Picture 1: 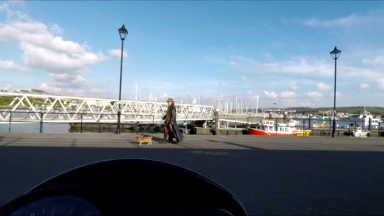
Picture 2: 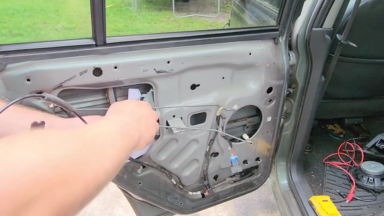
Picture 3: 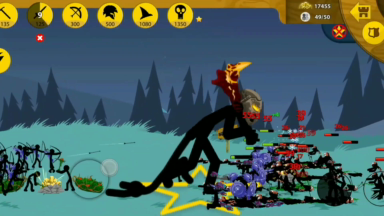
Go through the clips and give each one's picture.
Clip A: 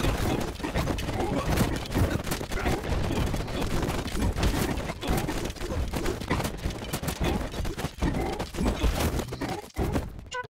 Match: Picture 3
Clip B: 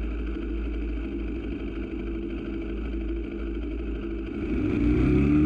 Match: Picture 1